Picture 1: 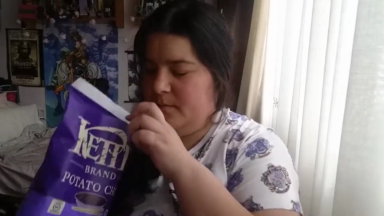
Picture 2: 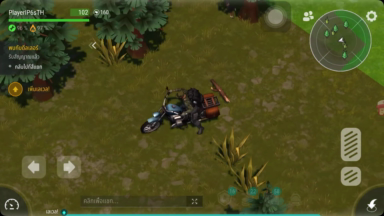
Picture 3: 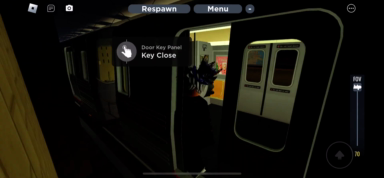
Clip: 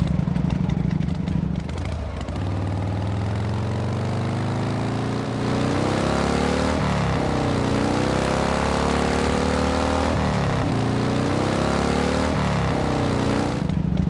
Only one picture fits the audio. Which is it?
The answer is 2